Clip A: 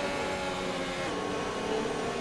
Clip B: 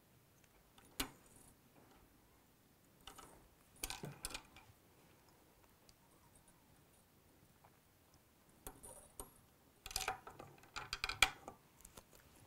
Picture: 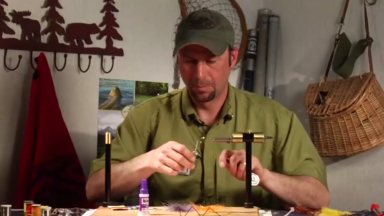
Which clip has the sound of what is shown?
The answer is B